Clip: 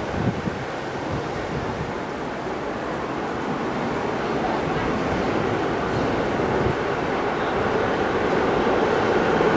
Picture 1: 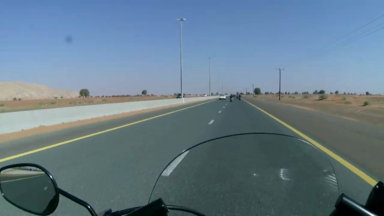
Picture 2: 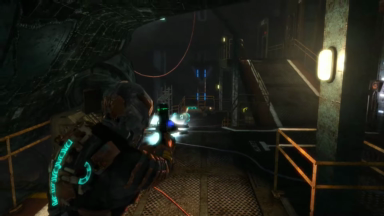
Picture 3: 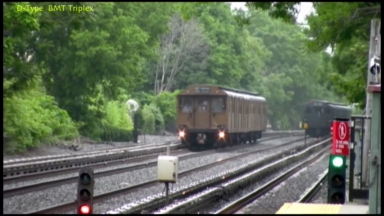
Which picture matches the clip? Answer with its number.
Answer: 3